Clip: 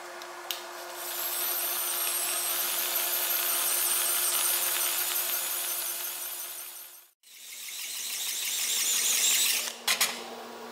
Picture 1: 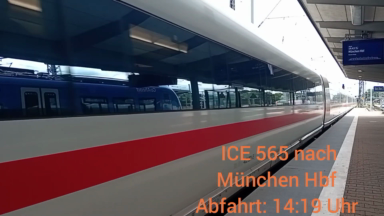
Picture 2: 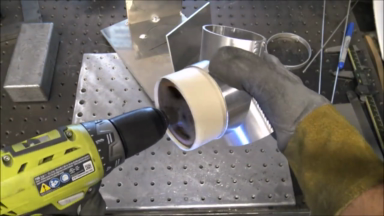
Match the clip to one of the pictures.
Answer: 2